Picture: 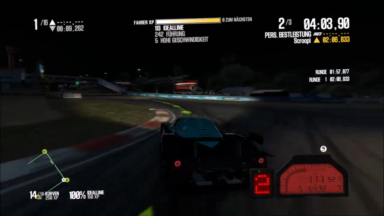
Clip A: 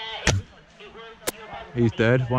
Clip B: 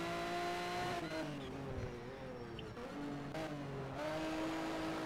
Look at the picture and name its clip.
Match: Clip B